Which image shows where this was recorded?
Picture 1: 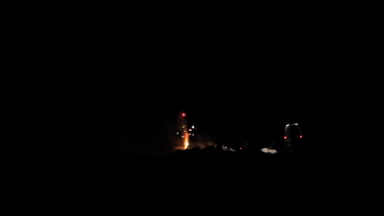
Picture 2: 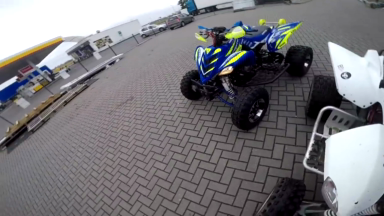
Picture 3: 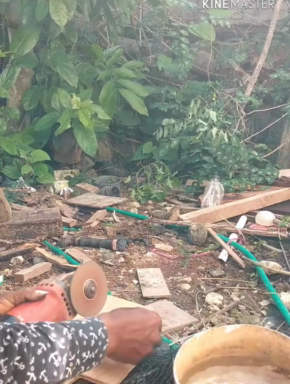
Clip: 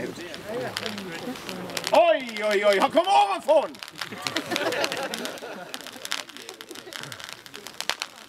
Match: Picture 1